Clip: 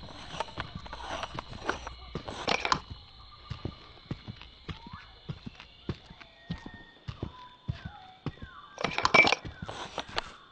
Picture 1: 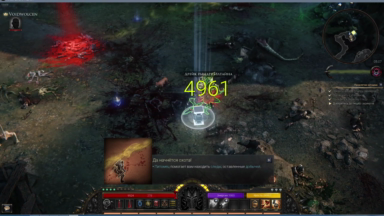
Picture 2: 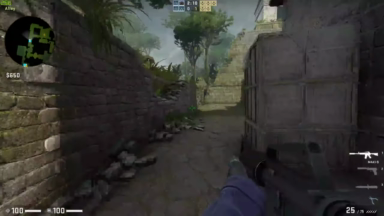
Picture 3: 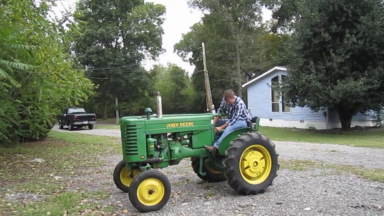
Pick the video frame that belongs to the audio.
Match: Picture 2